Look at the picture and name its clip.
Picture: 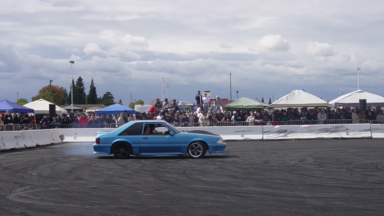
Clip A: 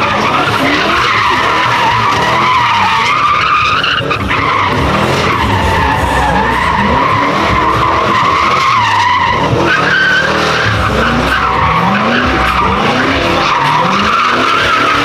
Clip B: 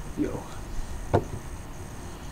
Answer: A